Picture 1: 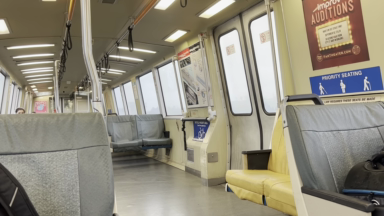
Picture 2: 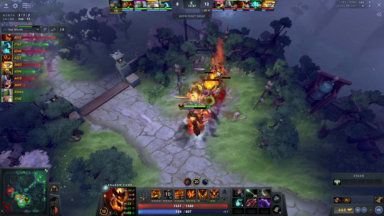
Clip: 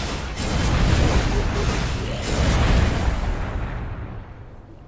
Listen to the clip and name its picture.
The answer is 2